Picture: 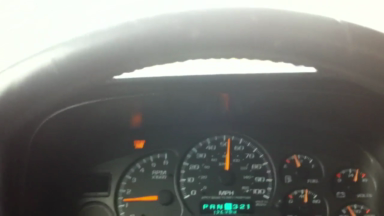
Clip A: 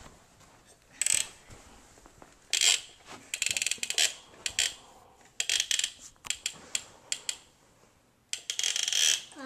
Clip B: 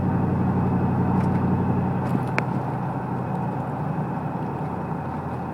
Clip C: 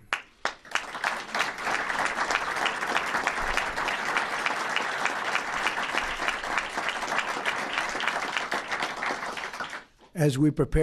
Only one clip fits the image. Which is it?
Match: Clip B